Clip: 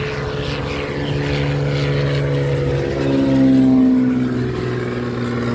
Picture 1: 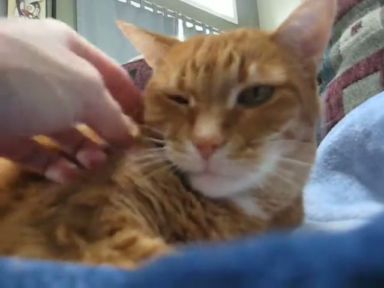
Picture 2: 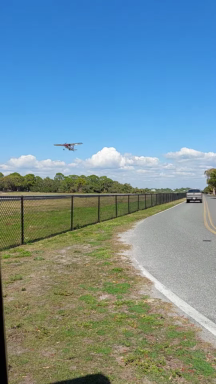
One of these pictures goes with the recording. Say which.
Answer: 2